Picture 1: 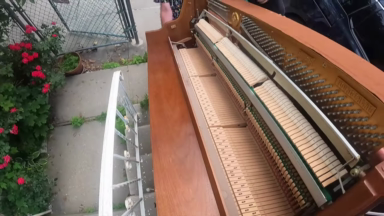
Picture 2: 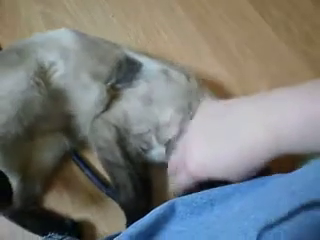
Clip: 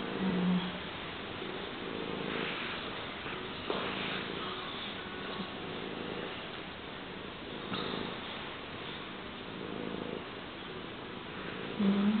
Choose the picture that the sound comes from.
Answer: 2